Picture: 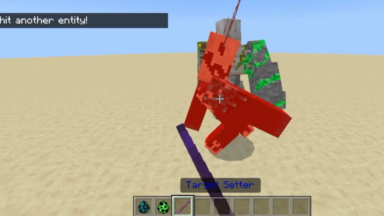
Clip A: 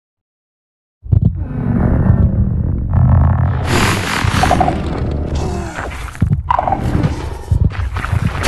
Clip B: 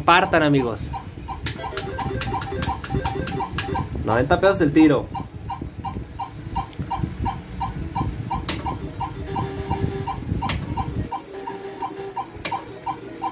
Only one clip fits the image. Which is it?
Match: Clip A